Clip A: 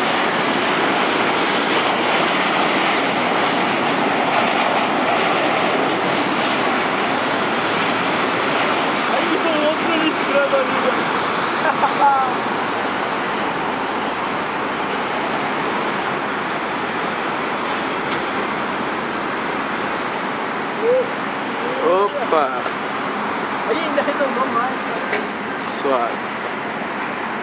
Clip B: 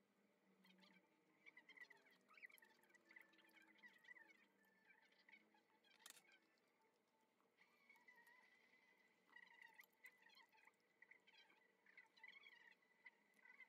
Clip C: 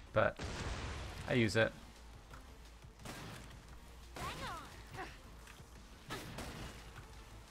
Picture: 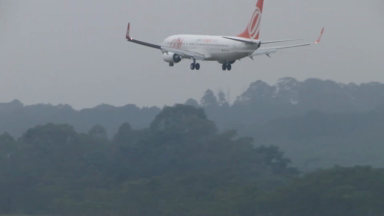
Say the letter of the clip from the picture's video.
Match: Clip A